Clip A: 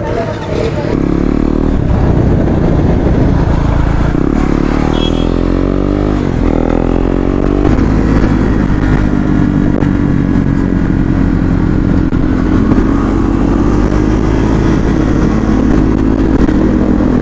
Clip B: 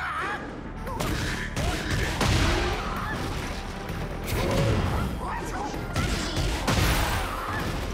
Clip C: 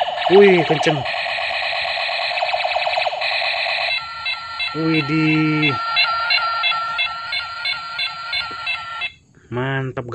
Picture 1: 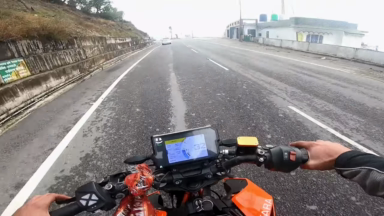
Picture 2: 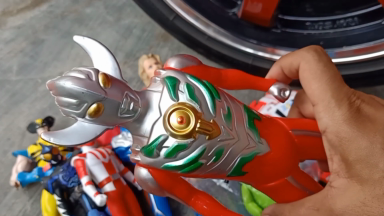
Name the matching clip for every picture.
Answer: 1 A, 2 C